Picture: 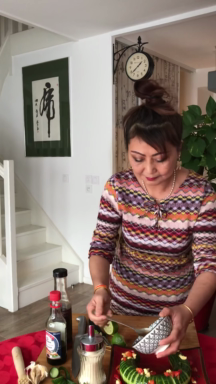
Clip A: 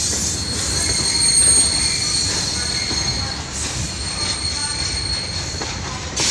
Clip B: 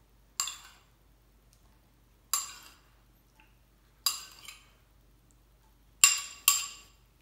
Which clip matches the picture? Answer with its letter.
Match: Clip B